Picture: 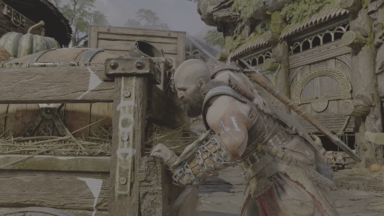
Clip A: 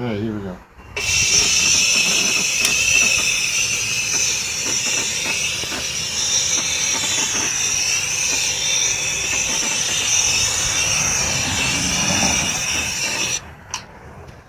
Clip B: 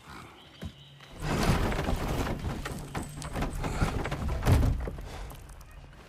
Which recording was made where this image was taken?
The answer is B